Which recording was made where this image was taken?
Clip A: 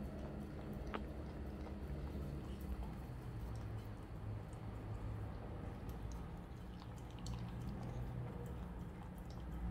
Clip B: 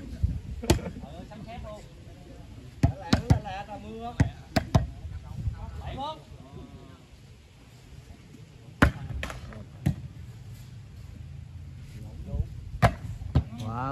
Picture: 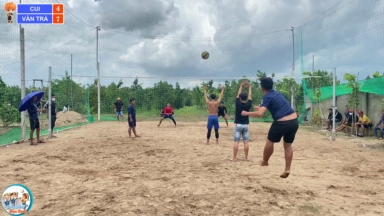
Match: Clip B